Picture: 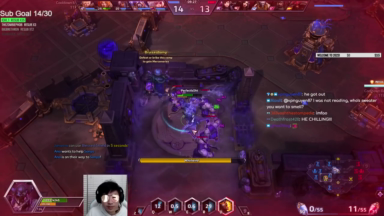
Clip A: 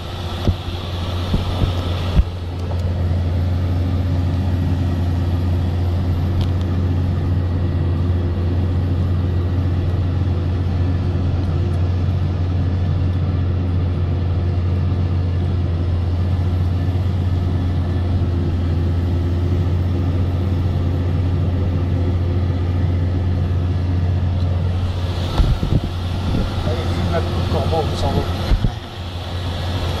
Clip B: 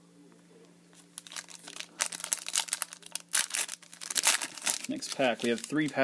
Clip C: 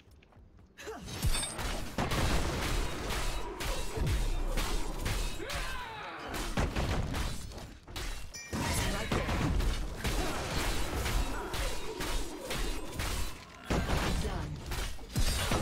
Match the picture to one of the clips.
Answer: C